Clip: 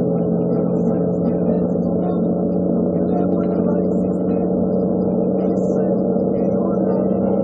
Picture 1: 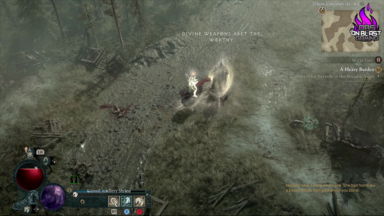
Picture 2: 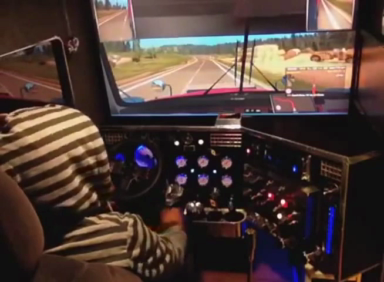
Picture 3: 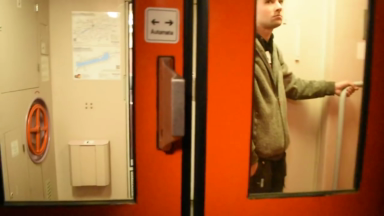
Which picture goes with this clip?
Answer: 2